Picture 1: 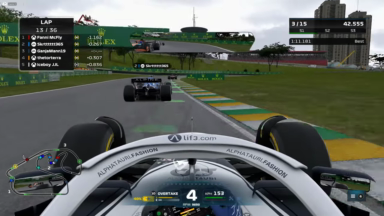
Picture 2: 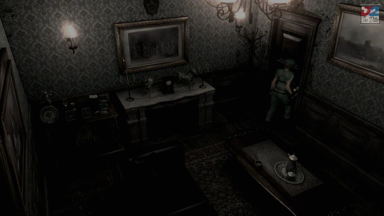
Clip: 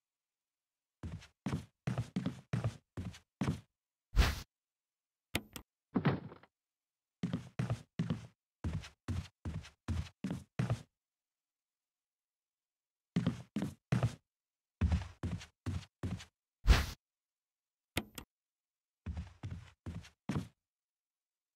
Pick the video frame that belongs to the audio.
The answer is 2